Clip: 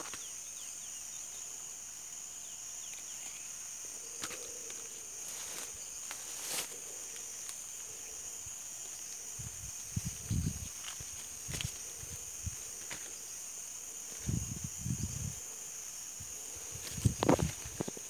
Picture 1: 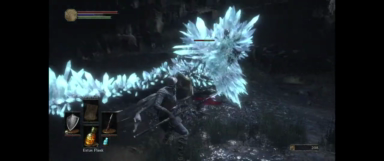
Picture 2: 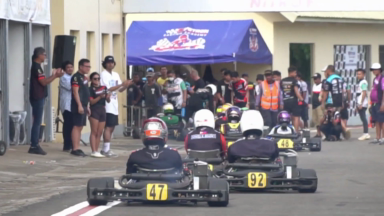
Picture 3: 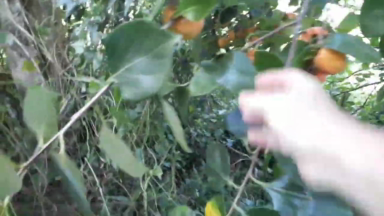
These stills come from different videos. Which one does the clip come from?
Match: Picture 3